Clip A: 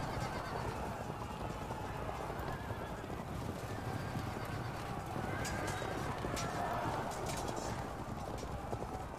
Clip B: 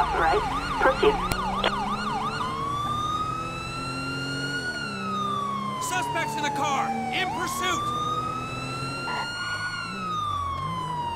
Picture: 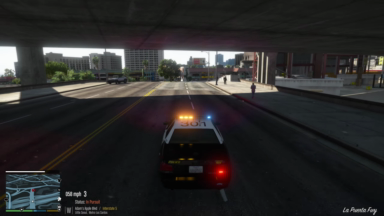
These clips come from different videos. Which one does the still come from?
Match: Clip B